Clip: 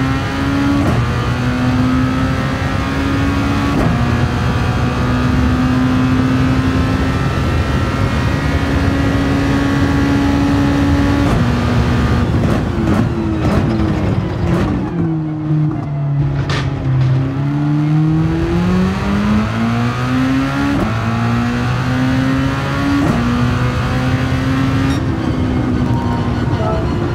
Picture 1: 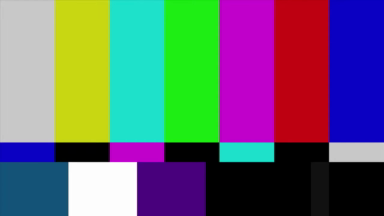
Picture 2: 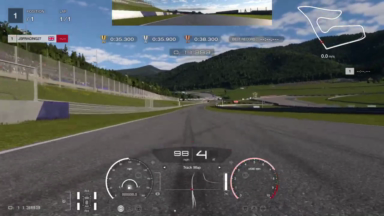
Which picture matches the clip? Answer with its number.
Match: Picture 2